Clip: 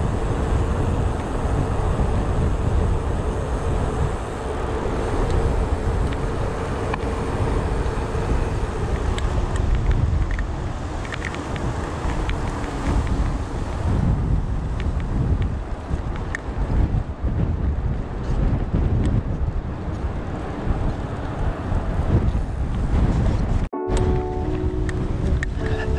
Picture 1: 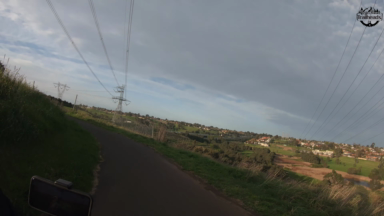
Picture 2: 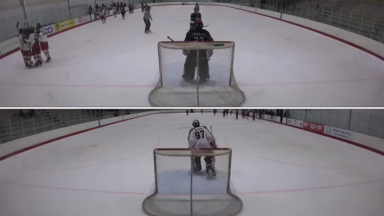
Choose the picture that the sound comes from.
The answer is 1